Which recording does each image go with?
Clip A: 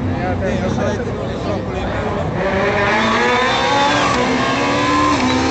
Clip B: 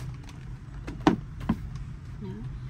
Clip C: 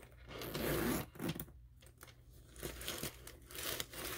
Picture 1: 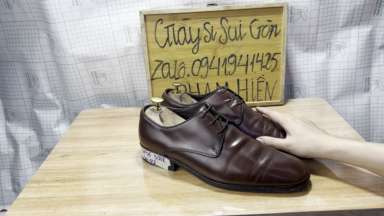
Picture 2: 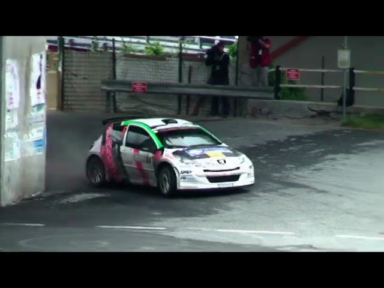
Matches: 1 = B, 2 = A